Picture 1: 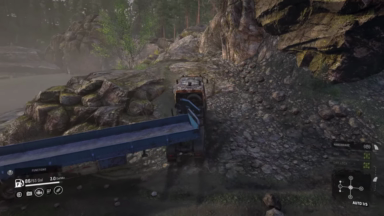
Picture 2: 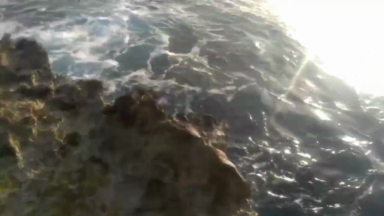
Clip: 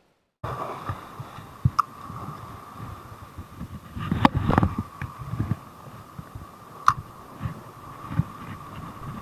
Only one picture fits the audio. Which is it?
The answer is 2